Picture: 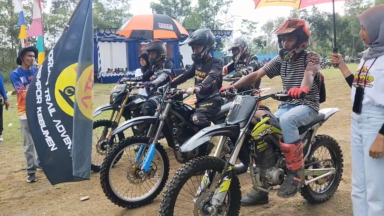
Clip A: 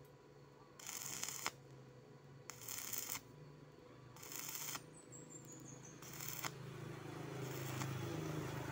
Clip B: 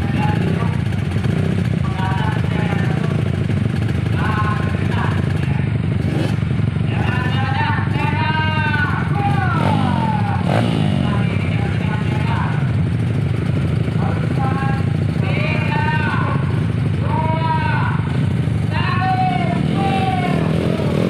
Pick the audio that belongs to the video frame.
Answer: B